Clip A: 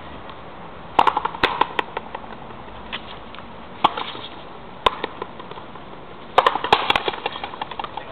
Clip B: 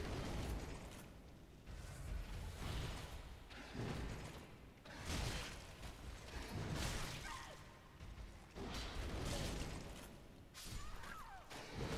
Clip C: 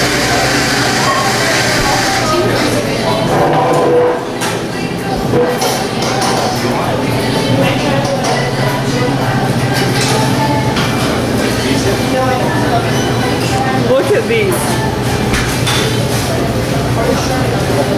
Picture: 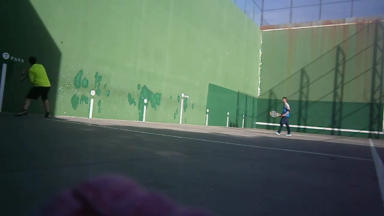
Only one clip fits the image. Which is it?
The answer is A